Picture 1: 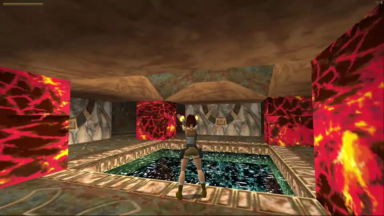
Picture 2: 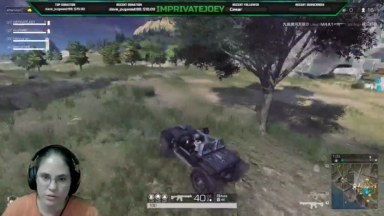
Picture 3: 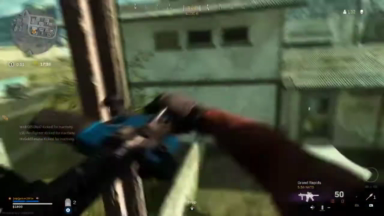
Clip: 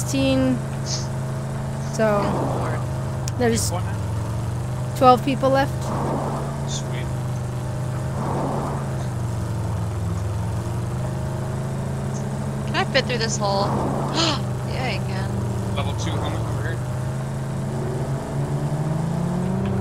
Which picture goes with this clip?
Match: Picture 2